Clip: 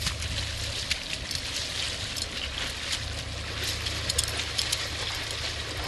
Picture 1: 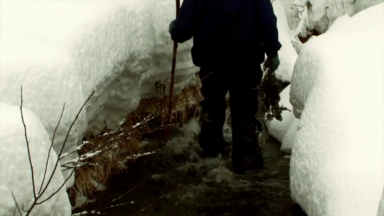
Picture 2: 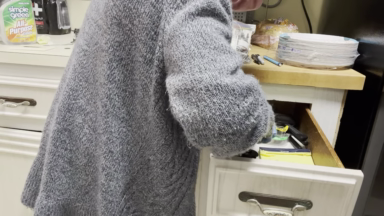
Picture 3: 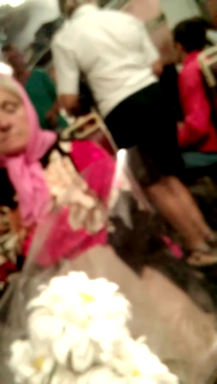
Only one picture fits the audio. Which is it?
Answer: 1